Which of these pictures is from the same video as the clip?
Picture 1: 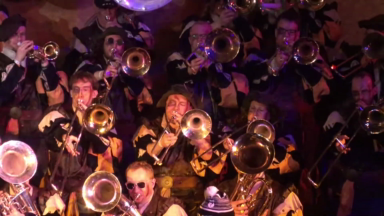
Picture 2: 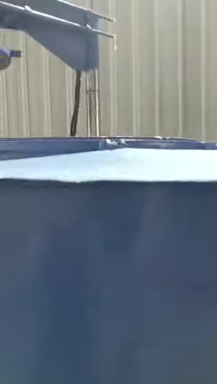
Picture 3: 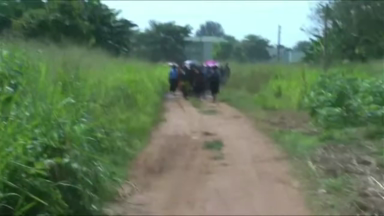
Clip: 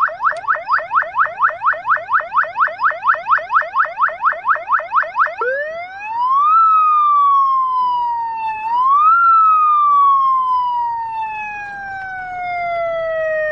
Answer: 3